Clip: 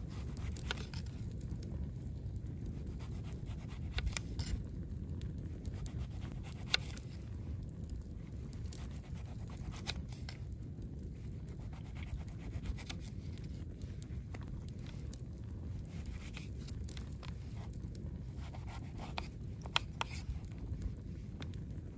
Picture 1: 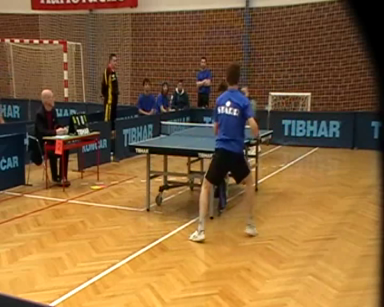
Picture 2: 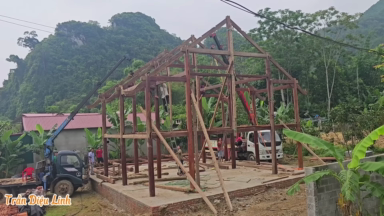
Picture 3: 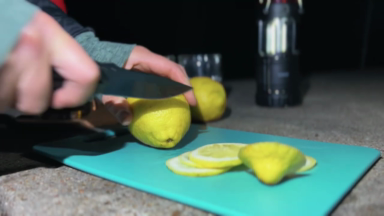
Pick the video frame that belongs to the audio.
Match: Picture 3